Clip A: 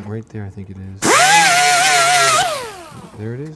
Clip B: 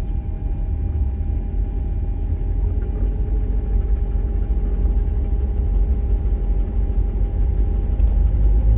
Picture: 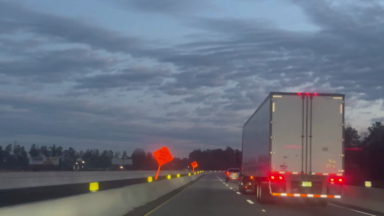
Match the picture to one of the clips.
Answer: B